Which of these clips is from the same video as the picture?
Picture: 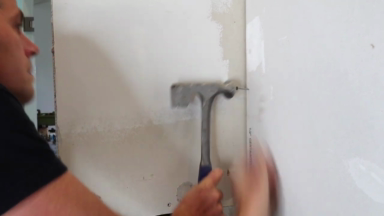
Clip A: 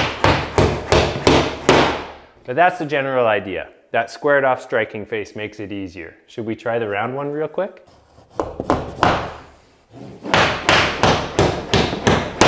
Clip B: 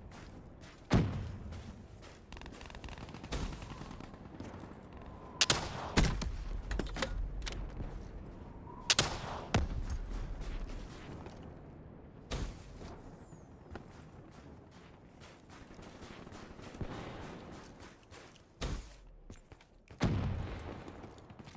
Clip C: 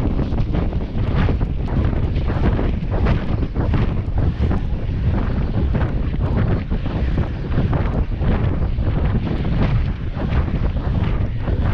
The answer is A